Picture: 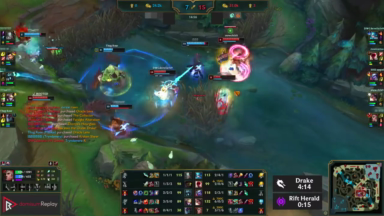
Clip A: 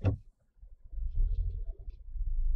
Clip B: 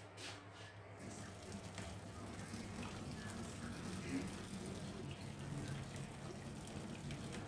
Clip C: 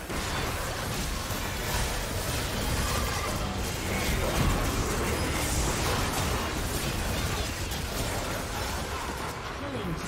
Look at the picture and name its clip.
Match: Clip C